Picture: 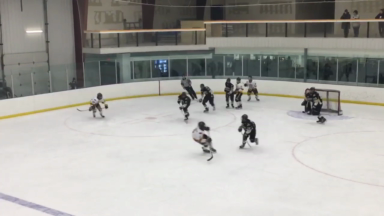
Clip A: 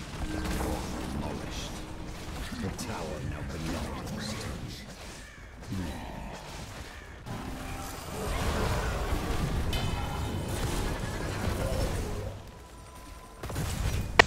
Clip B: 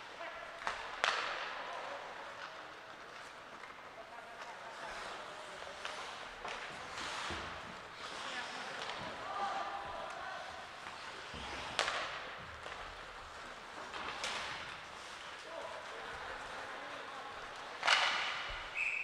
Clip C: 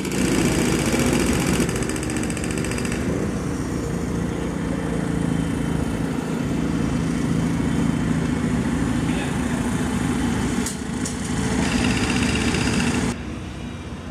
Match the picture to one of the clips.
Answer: B